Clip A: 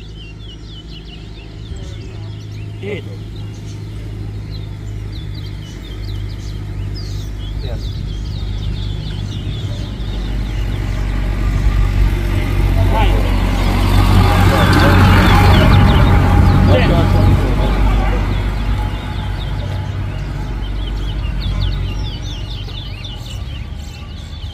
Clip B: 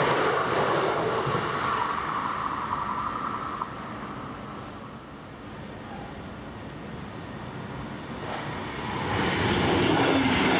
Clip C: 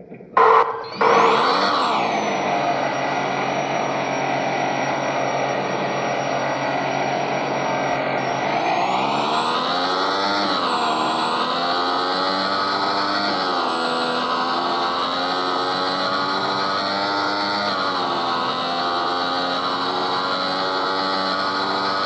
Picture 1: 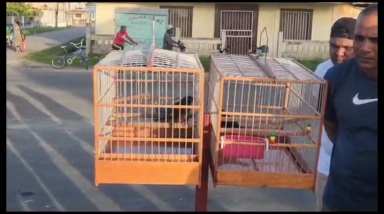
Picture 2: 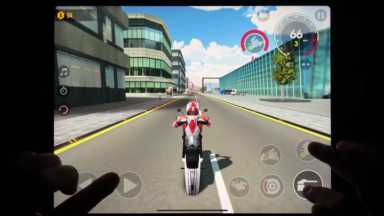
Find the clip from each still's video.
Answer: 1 A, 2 C